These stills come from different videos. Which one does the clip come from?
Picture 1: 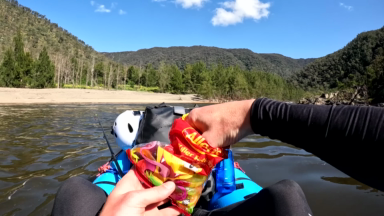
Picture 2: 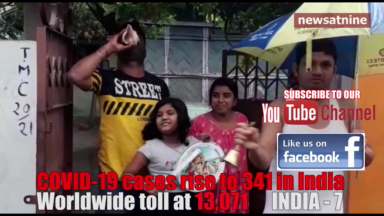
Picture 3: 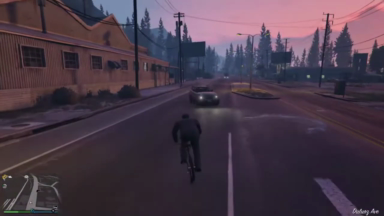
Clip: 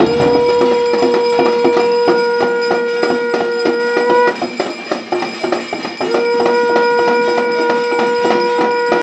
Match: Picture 2